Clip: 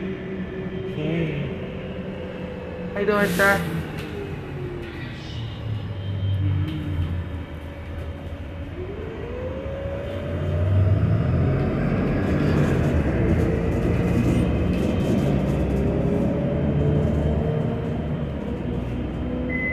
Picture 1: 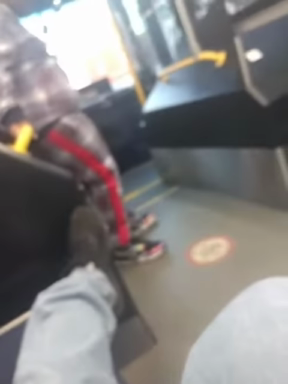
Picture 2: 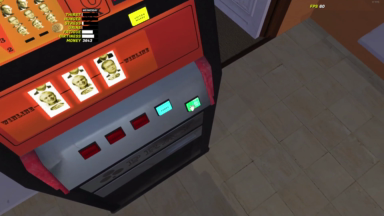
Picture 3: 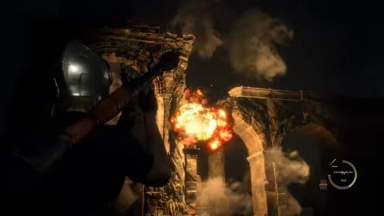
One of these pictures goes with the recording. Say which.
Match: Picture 1